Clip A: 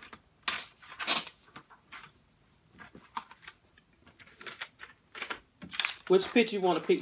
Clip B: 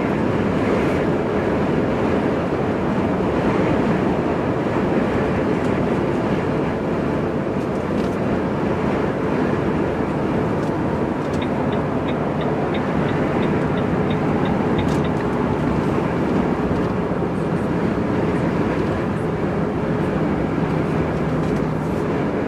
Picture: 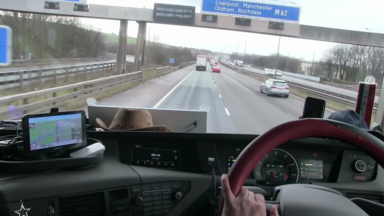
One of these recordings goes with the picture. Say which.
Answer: B